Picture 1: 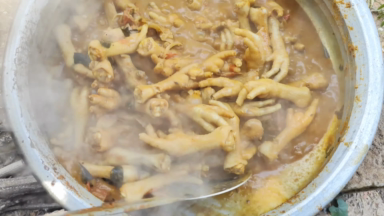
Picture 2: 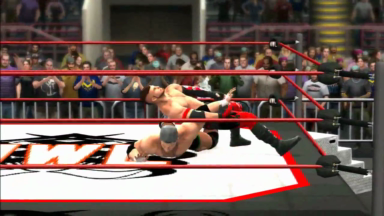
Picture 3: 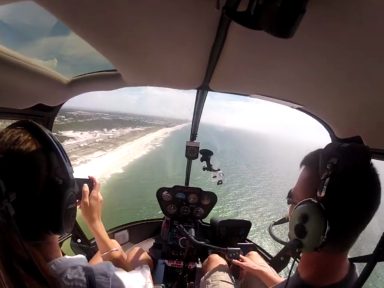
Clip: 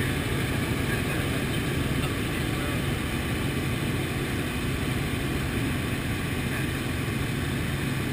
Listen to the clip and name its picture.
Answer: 3